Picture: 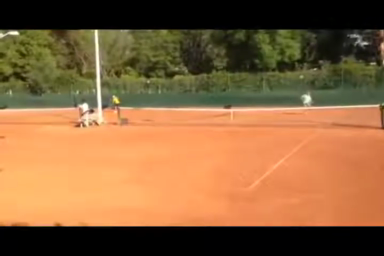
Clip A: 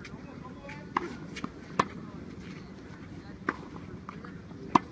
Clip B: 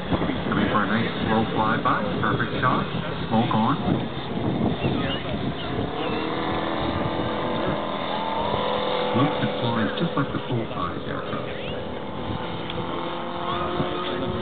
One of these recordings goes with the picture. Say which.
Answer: A